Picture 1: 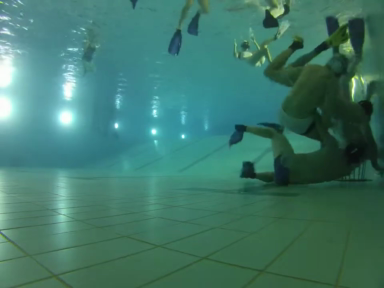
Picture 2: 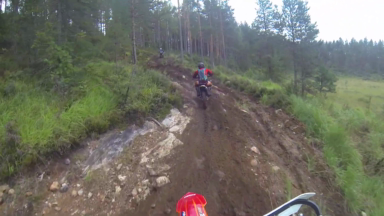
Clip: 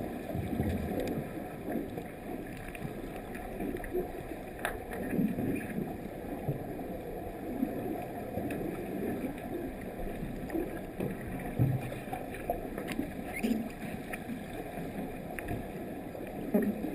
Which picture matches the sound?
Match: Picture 1